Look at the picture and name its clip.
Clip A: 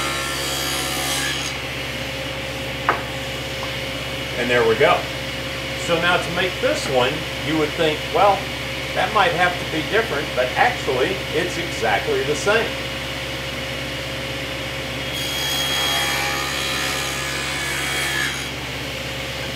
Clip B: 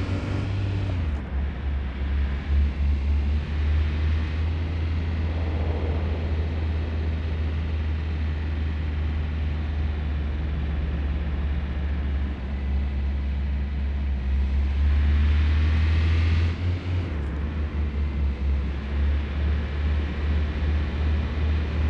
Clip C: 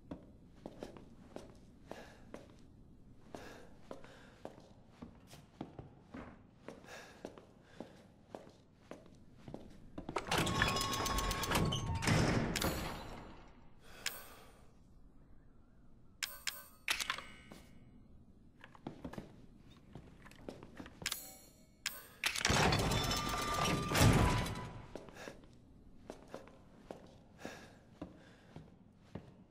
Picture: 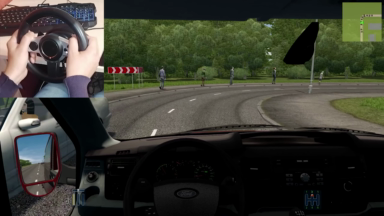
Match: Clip B